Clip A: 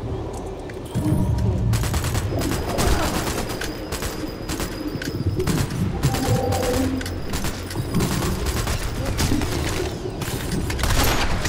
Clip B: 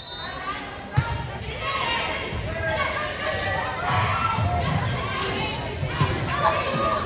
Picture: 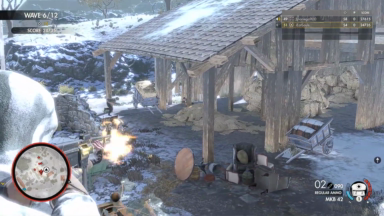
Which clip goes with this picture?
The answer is A